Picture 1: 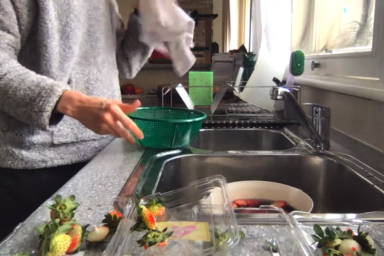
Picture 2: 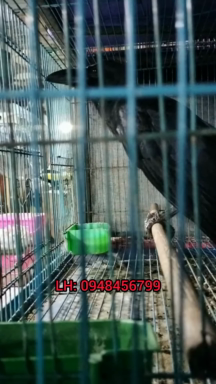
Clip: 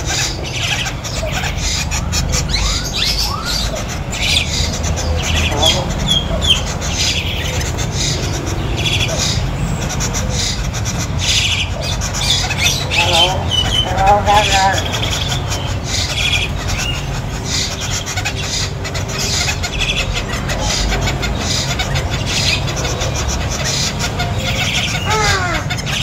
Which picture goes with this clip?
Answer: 2